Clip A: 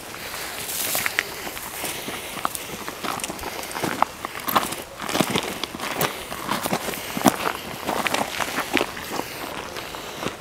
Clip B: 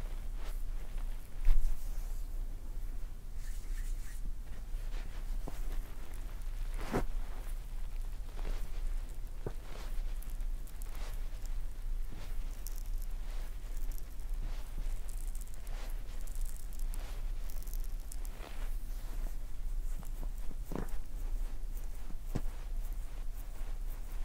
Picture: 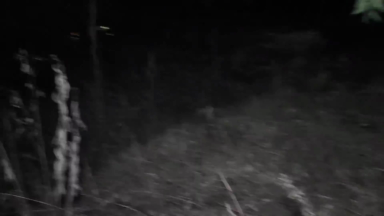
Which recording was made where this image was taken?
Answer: A